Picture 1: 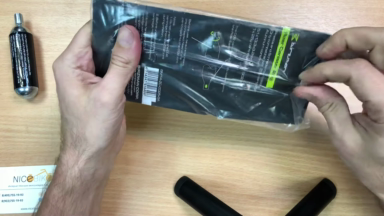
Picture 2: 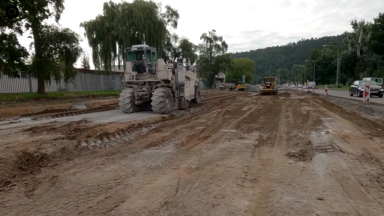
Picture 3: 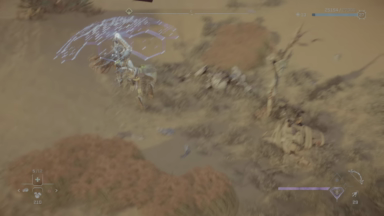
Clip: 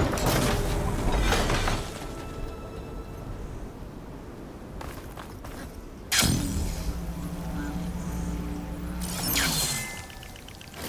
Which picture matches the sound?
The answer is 3